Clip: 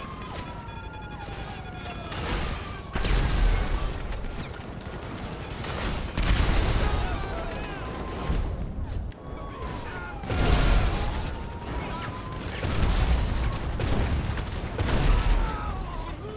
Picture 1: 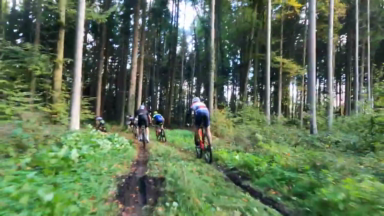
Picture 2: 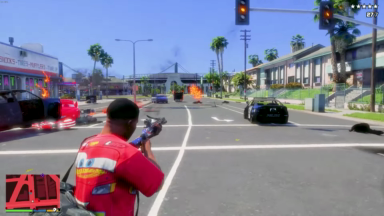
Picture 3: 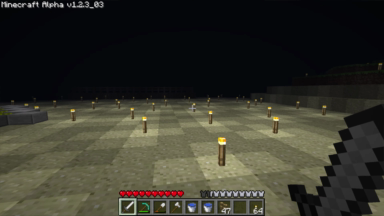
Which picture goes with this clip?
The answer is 2